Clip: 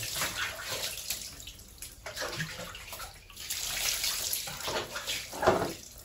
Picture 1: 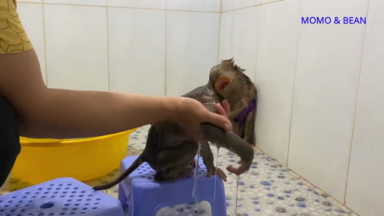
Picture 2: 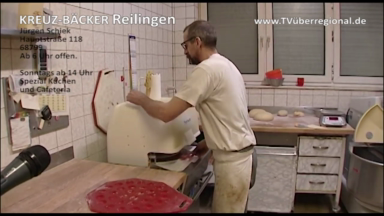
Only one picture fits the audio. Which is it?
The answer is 1